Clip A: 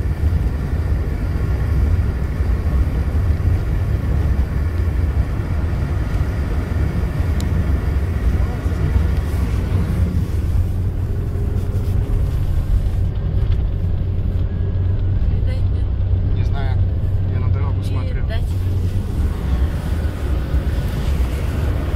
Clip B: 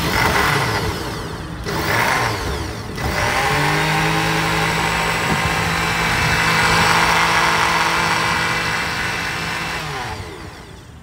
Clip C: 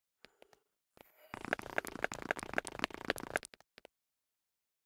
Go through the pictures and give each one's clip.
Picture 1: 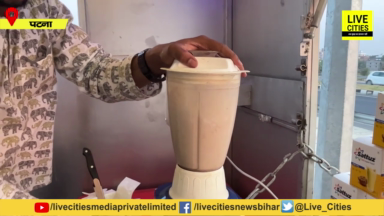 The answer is B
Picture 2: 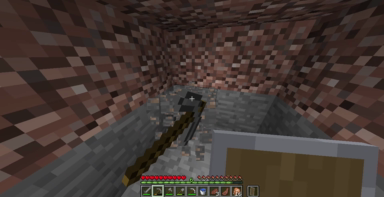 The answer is C